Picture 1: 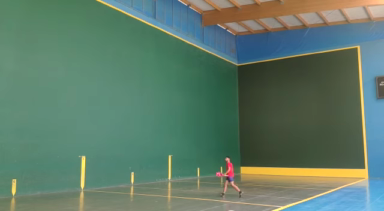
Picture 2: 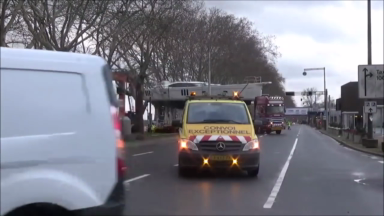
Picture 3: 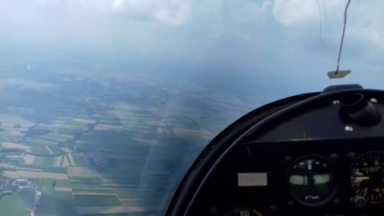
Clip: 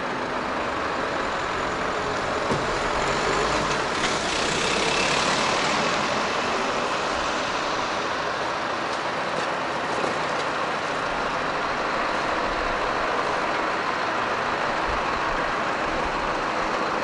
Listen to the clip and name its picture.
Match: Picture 2